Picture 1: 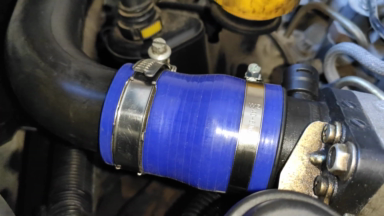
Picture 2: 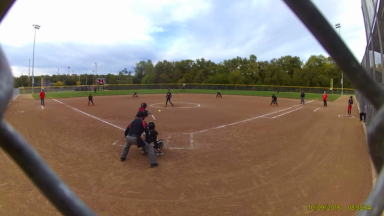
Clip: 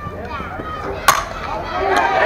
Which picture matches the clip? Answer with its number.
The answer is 2